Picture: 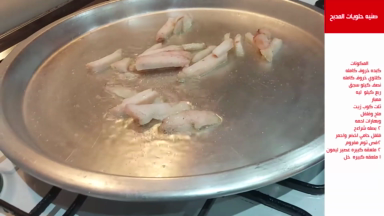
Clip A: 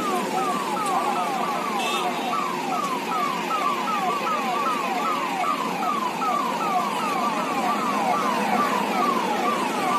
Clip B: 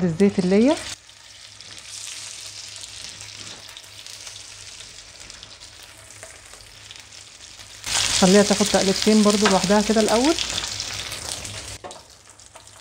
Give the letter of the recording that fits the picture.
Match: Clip B